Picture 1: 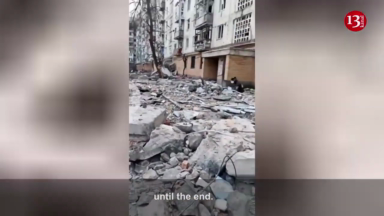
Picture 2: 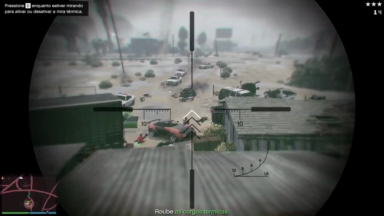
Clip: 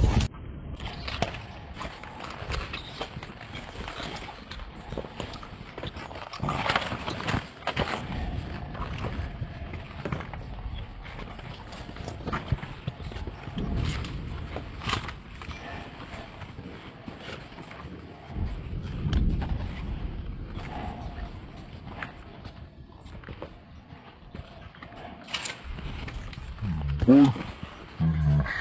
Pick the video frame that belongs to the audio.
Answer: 1